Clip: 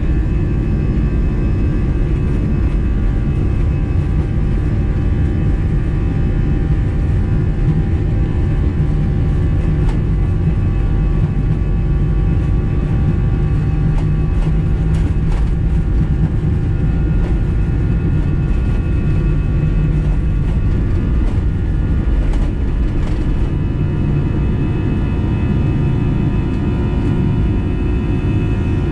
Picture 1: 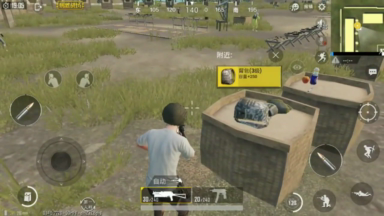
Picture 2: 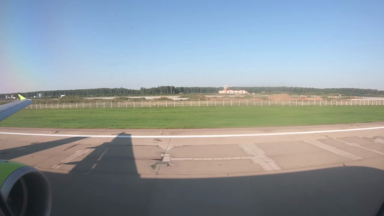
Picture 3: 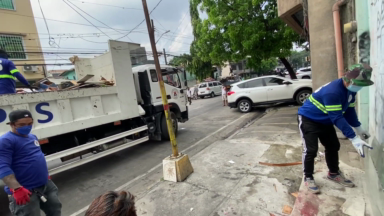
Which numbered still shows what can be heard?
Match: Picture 2